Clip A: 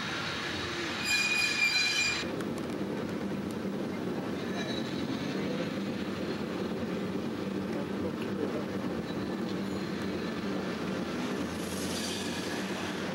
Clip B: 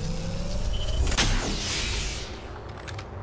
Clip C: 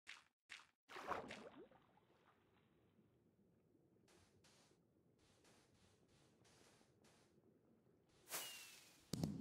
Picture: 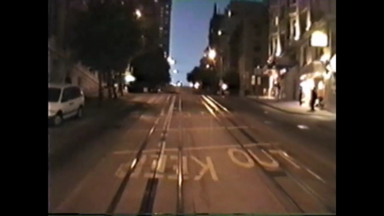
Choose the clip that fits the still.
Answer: A